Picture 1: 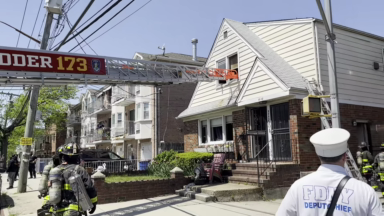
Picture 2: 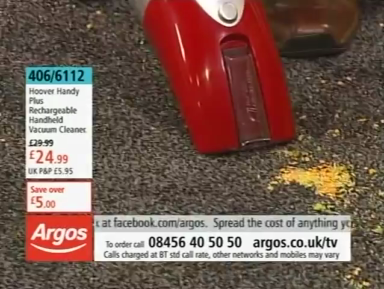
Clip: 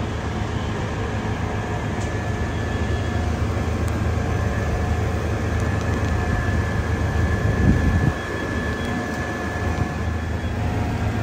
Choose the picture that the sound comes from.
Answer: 1